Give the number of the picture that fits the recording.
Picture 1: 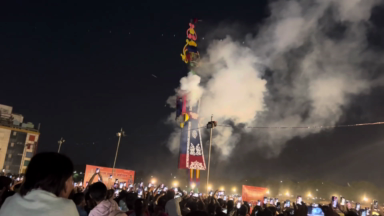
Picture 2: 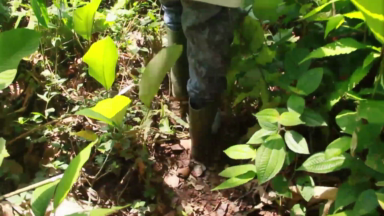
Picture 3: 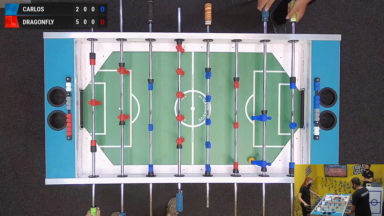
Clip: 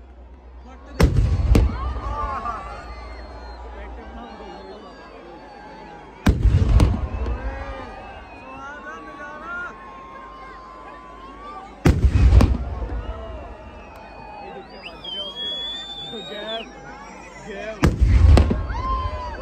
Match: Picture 1